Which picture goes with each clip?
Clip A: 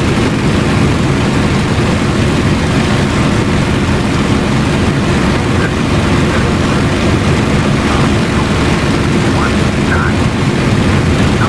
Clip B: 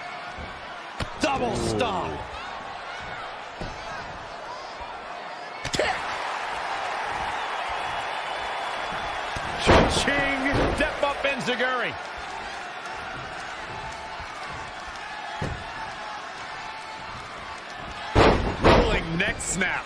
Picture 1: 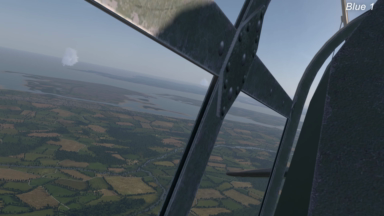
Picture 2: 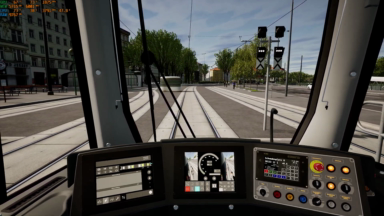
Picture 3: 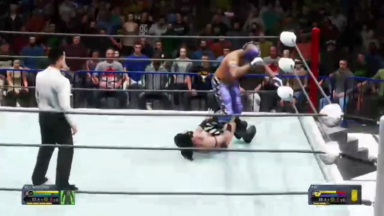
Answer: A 1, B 3